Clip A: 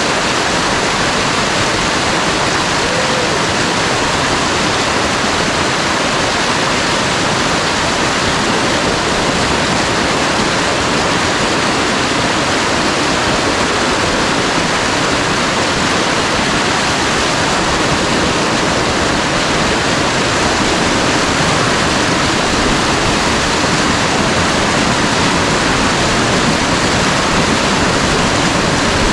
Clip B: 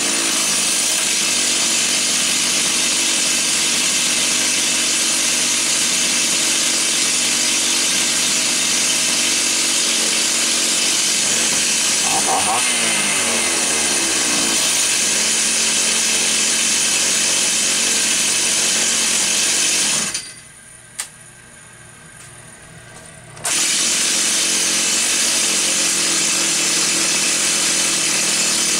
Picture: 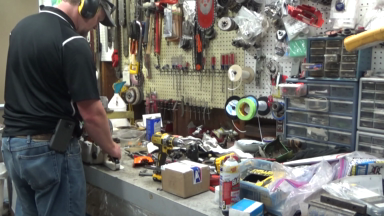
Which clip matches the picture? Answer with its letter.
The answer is B